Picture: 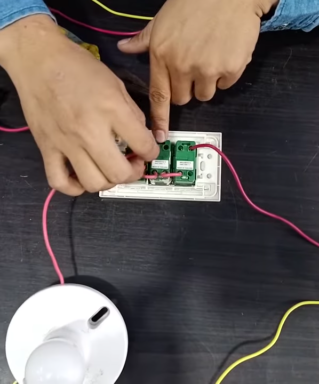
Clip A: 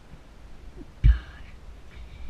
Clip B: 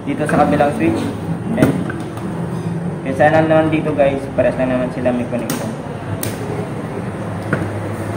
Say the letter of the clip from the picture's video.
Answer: B